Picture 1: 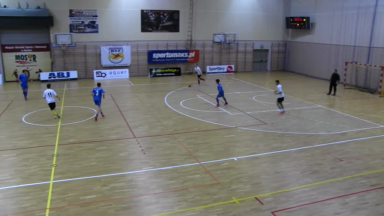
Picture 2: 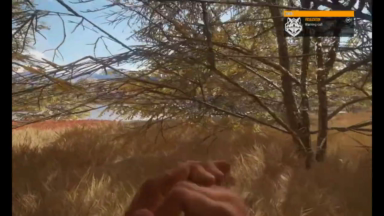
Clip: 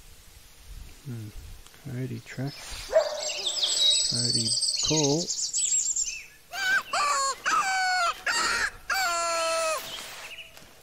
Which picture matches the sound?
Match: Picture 2